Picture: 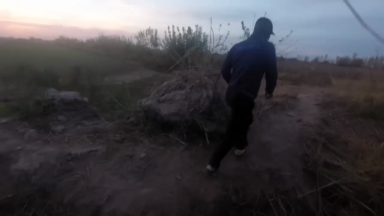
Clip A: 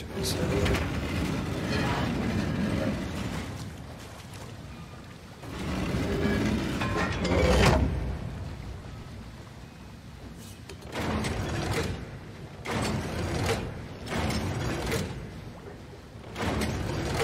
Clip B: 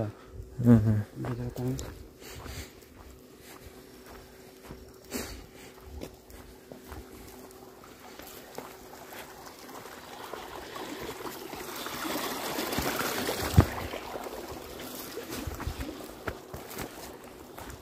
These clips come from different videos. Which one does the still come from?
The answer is B